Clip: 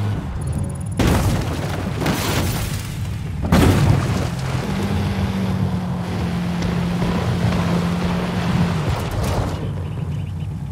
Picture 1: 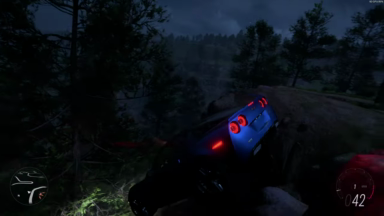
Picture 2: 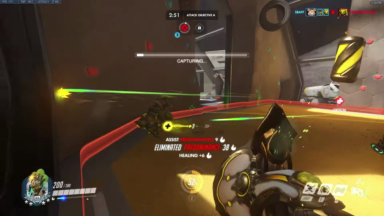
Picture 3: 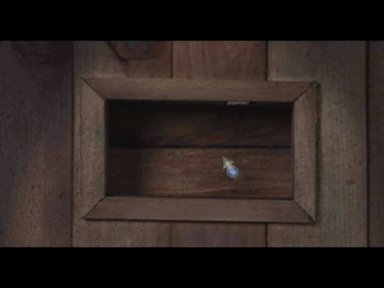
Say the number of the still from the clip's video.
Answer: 1